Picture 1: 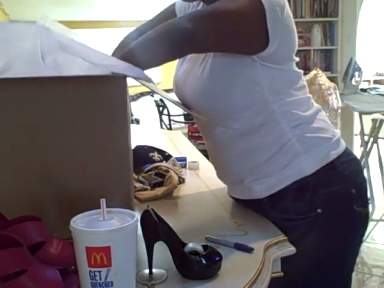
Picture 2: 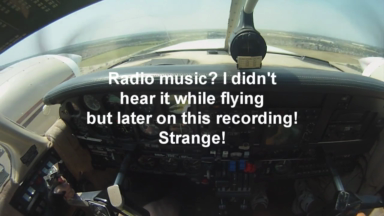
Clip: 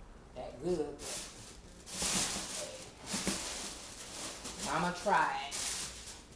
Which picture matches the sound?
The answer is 1